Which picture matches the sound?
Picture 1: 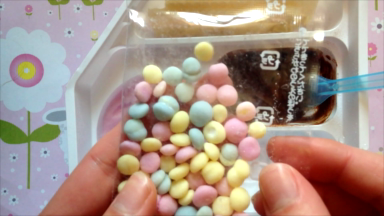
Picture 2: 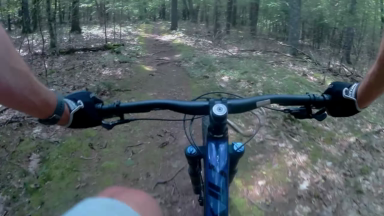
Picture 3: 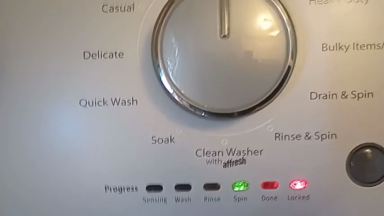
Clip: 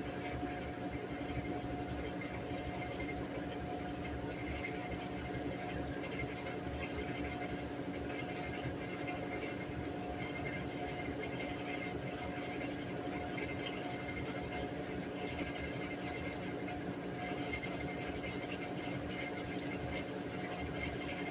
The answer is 3